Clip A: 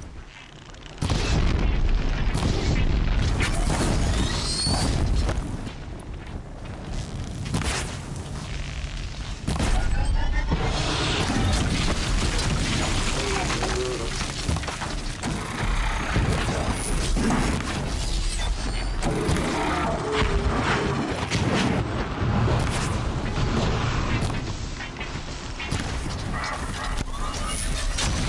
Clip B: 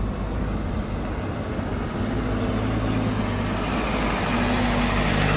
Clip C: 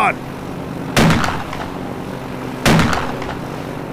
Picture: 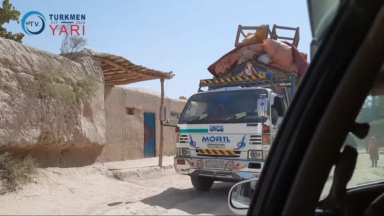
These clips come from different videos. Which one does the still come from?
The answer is B